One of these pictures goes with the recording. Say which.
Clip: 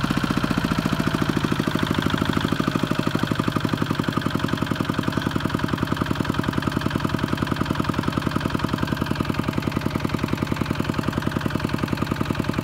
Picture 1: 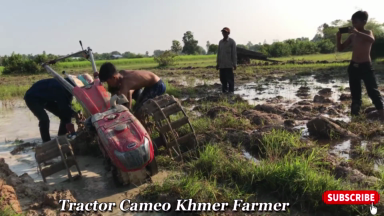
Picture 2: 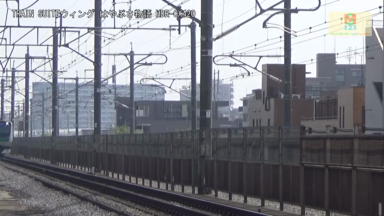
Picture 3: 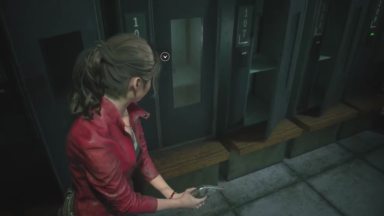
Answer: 1